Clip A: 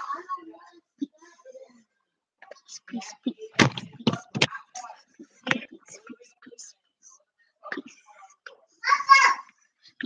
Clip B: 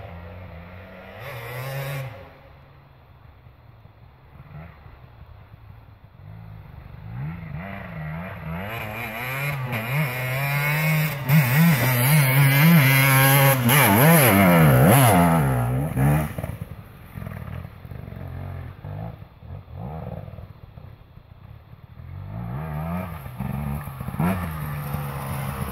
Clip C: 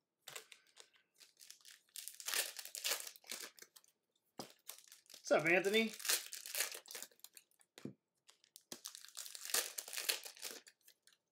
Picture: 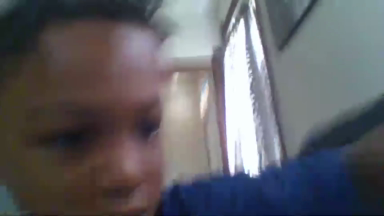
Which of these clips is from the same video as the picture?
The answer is A